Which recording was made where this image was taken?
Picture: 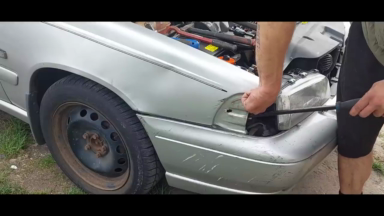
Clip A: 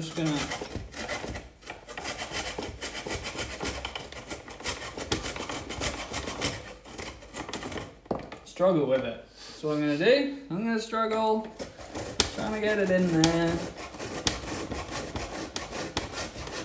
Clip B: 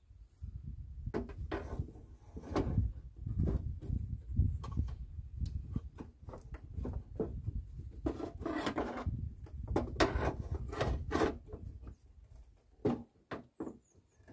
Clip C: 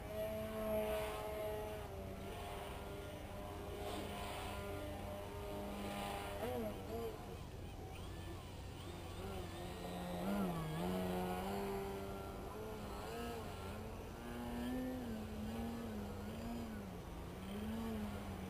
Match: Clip B